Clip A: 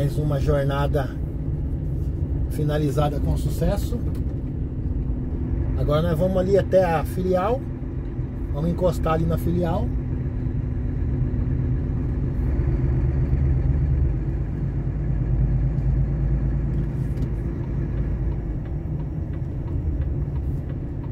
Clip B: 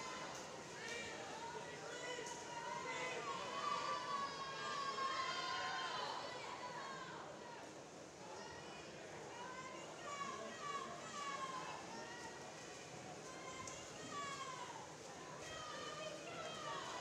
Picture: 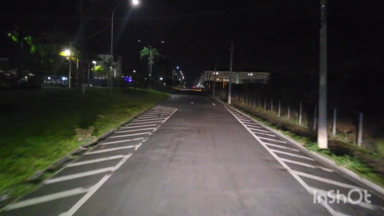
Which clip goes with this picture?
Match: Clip A